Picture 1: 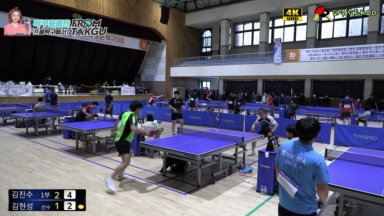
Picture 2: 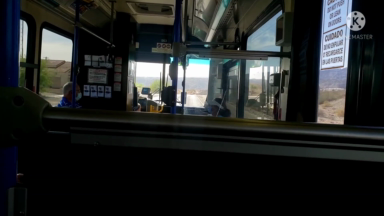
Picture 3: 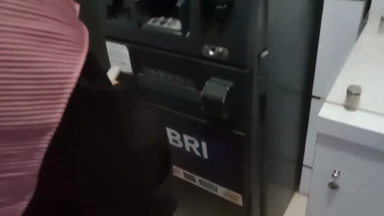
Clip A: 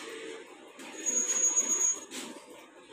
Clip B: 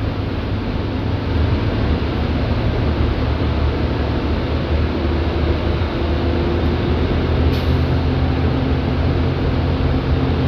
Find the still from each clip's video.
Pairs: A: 3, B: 2